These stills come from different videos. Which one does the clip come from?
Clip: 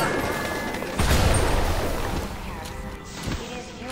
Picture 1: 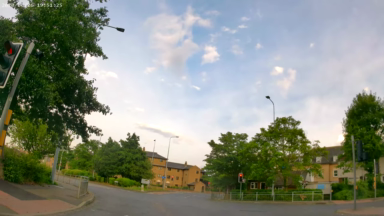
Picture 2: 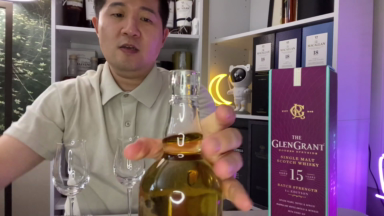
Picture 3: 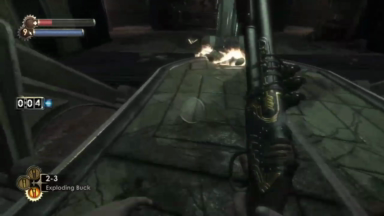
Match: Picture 3